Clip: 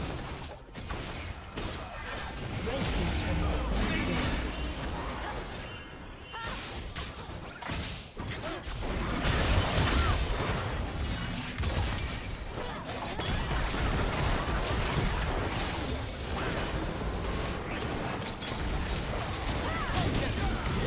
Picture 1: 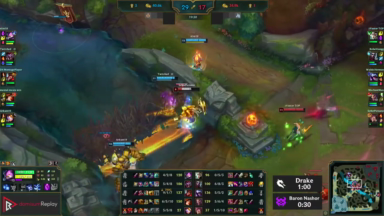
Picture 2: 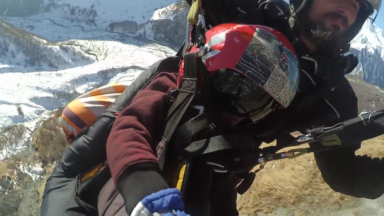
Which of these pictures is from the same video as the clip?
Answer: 1